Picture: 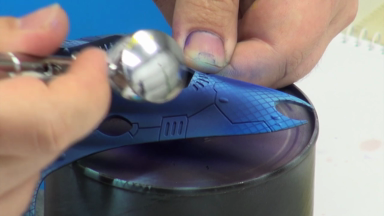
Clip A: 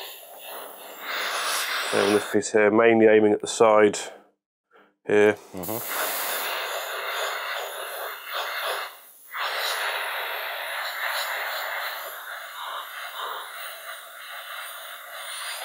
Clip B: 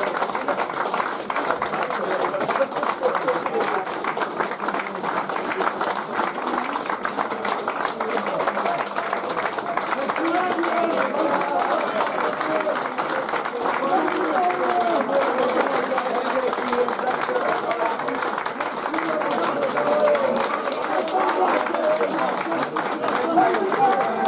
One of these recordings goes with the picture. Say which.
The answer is A